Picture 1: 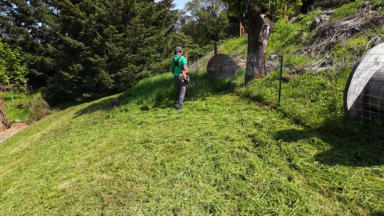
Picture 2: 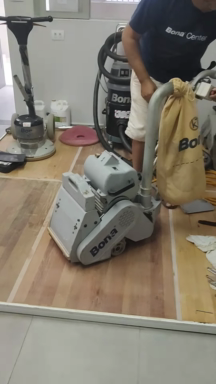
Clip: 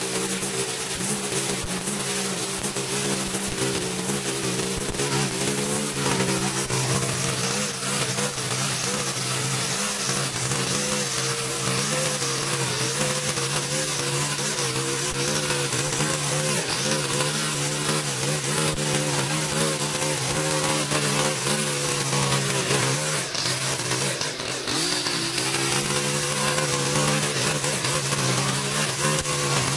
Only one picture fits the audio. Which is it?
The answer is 1